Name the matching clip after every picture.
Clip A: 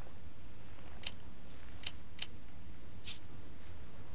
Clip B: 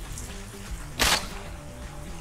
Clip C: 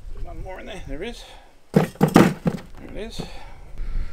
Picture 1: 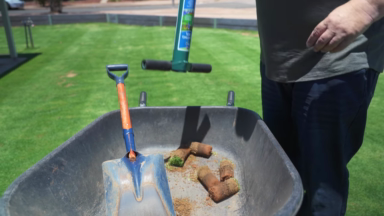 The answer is C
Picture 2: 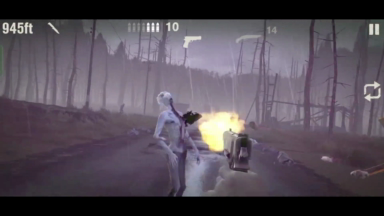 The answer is B